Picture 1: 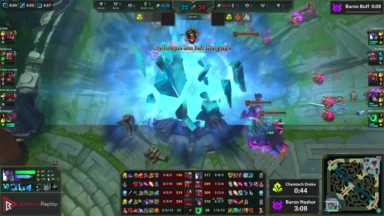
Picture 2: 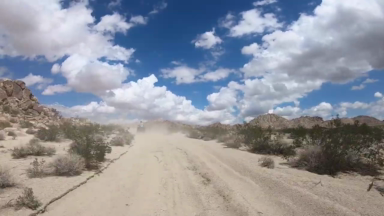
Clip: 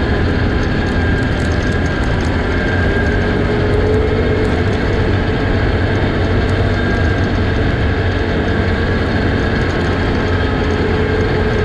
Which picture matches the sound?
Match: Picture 2